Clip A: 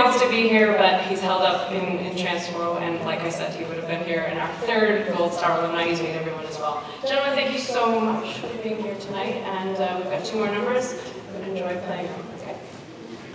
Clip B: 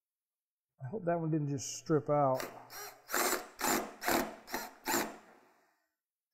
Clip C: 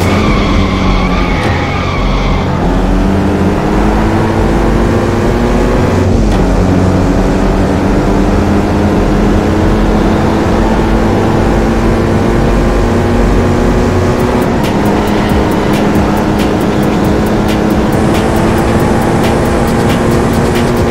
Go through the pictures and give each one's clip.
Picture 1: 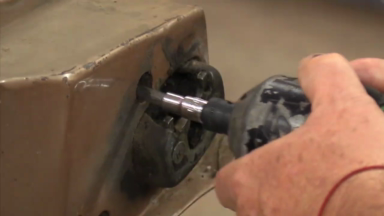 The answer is B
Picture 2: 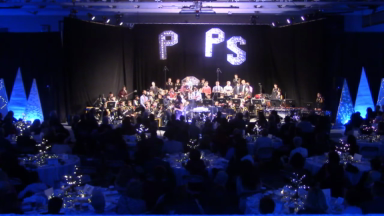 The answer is A